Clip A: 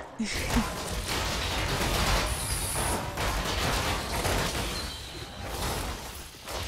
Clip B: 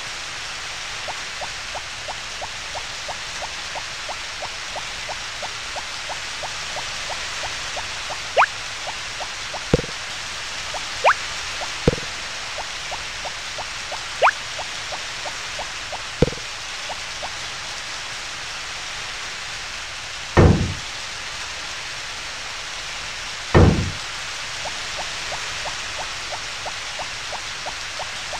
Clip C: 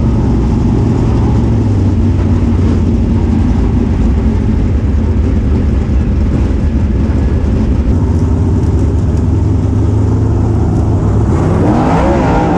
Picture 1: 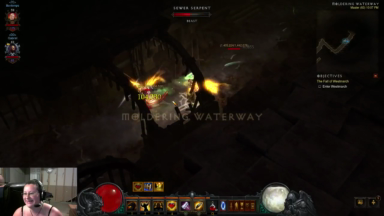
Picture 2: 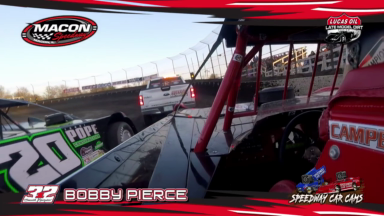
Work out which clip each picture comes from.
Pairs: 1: A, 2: C